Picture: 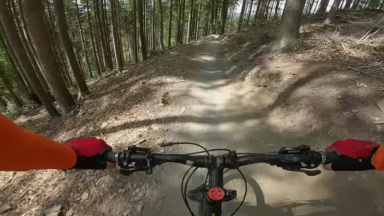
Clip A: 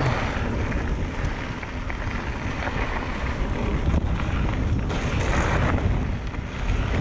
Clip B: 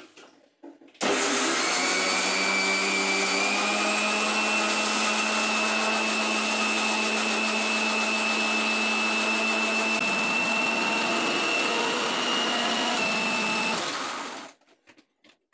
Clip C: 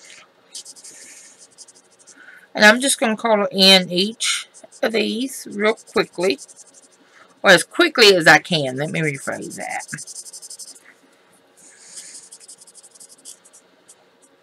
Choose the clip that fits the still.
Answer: A